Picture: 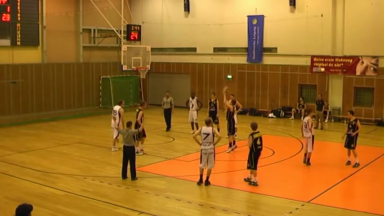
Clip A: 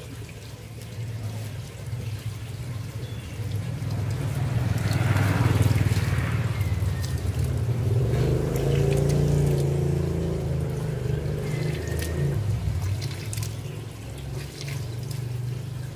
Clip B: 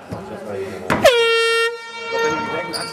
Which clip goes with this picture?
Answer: B